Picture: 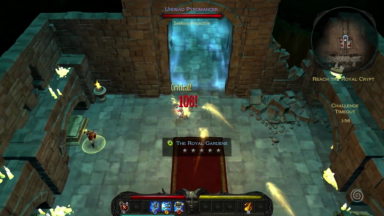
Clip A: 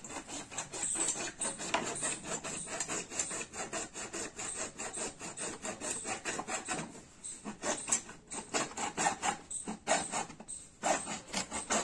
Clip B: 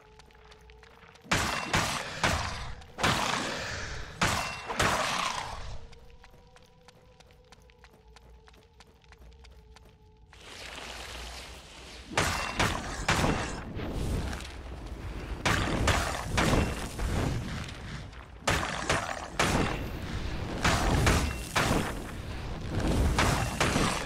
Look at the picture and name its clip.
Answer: B